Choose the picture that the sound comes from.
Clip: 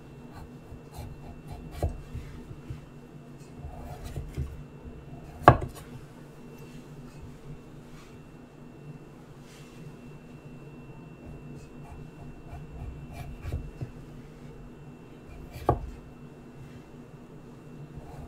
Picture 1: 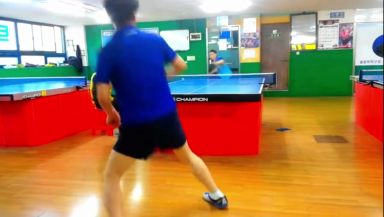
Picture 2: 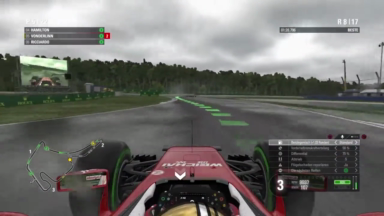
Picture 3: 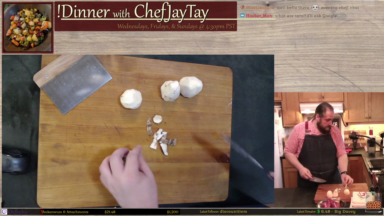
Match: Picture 3